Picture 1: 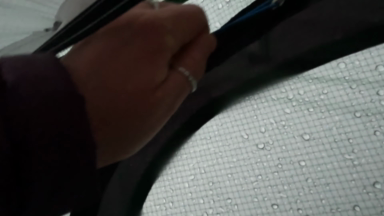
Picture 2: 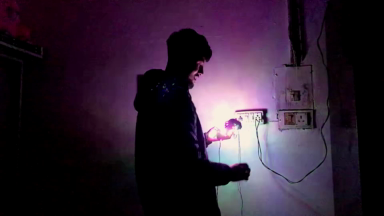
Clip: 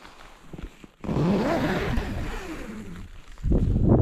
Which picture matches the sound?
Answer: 1